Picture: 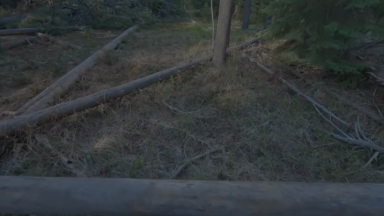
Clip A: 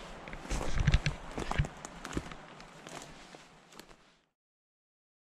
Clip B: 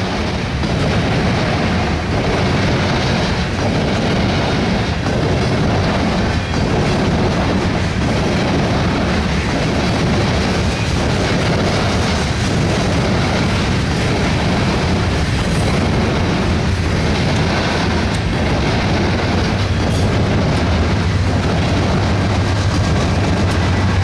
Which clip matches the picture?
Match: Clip A